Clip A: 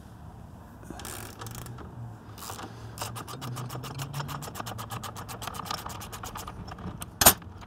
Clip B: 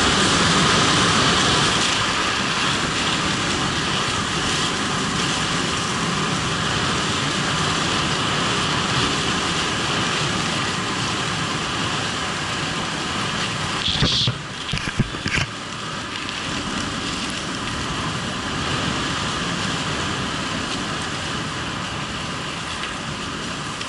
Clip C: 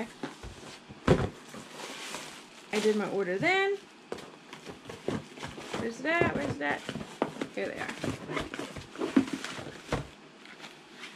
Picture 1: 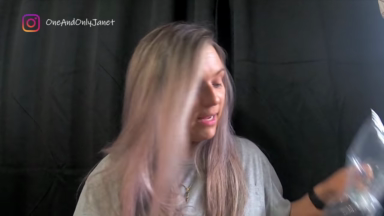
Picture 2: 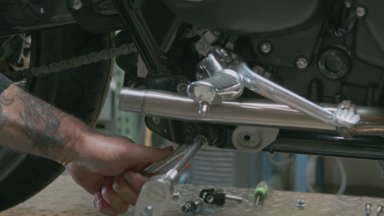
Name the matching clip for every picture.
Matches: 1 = C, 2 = A